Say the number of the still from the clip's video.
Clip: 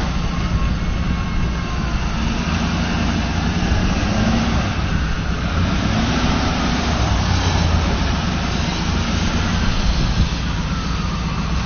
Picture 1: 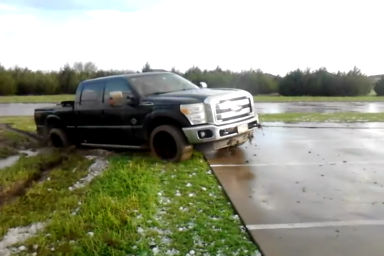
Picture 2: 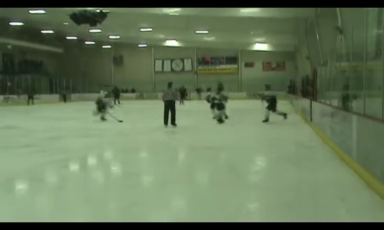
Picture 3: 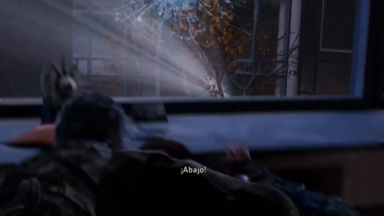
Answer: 1